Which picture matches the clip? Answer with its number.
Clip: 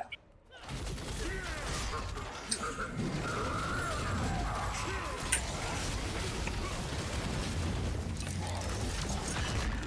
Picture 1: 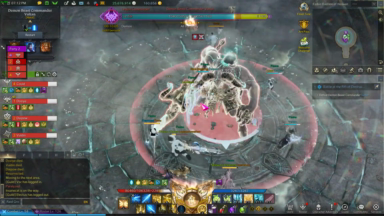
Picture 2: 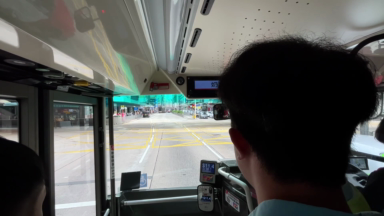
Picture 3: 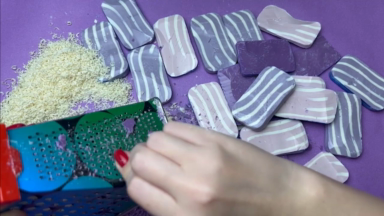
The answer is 1